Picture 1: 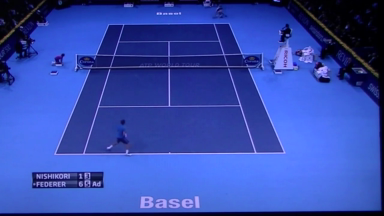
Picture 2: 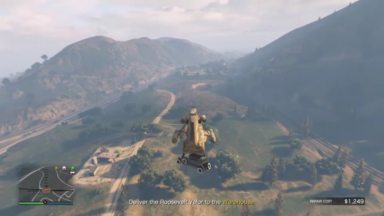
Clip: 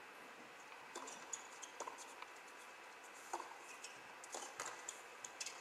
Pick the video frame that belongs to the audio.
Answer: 1